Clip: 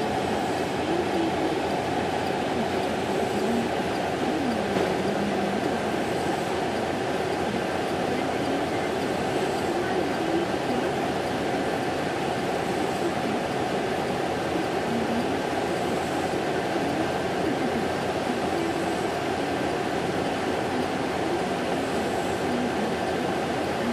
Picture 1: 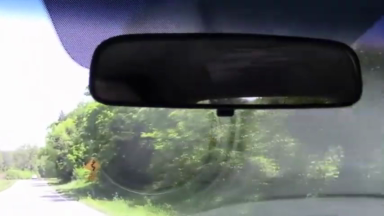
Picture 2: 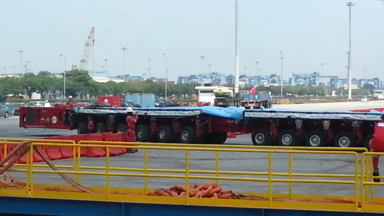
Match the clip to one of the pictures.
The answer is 2